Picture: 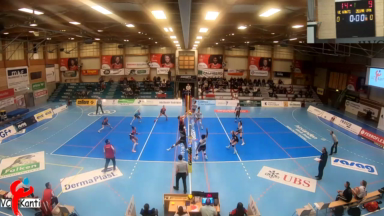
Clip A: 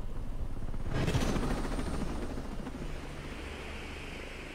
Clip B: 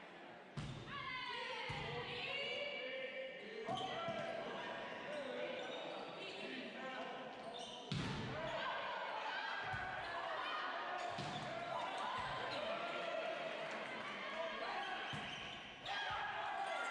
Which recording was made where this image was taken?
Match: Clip B